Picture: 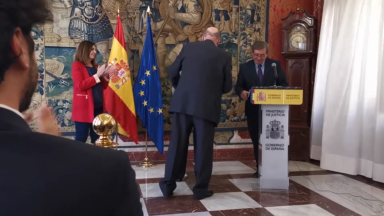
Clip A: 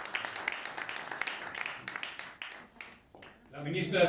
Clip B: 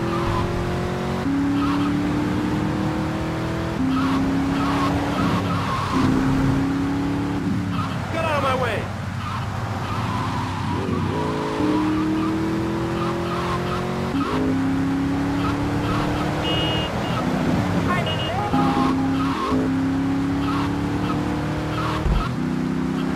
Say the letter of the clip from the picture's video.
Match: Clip A